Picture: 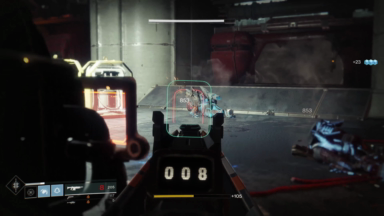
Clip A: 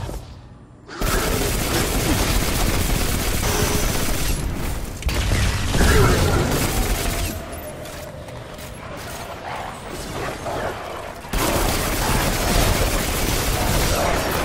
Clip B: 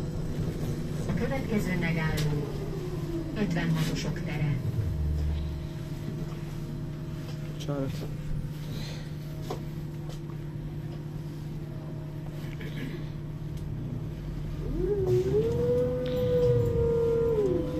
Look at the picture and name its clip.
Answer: A